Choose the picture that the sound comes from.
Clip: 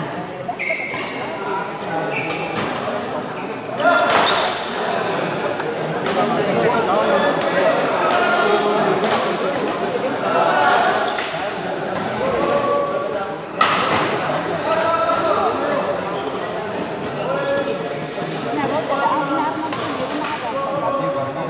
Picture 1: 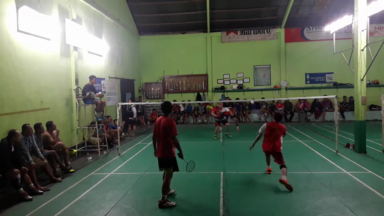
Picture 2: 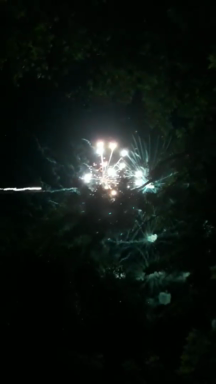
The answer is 1